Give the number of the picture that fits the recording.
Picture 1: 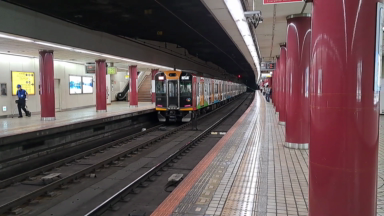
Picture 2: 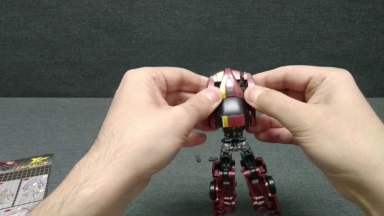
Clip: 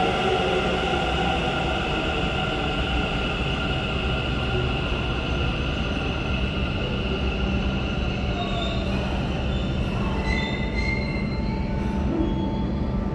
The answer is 1